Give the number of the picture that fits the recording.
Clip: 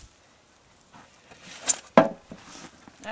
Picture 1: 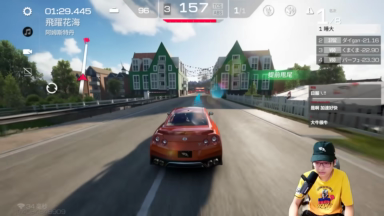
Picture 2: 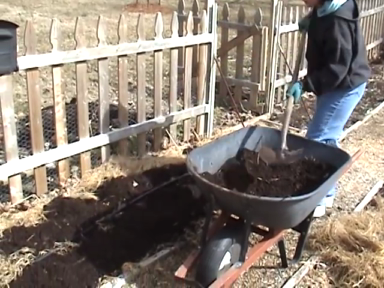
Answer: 2